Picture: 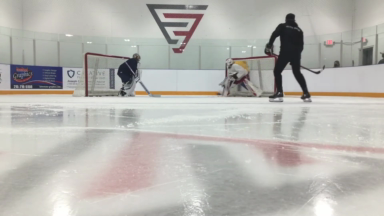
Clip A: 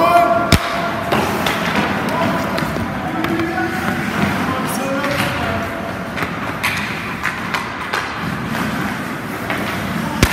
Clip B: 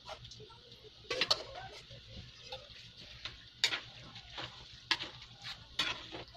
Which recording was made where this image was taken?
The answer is A